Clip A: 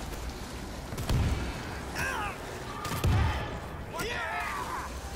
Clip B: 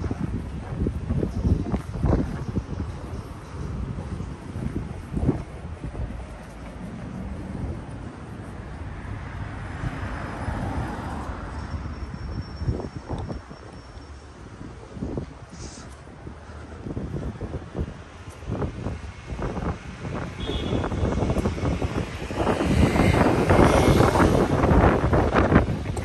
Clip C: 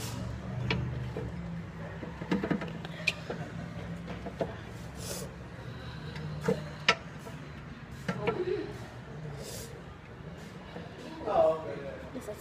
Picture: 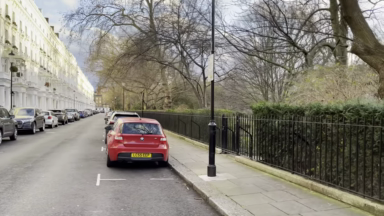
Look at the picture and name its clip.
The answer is B